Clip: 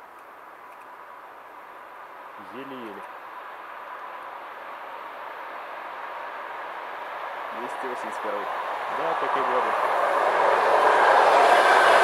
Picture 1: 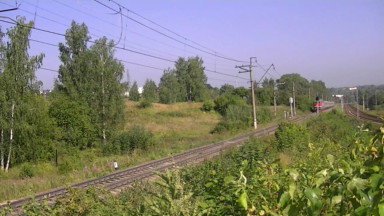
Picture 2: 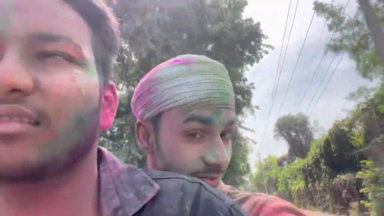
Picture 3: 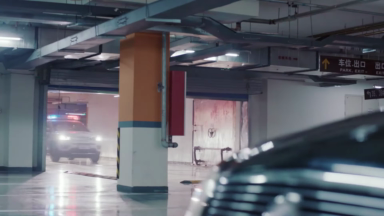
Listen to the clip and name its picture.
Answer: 1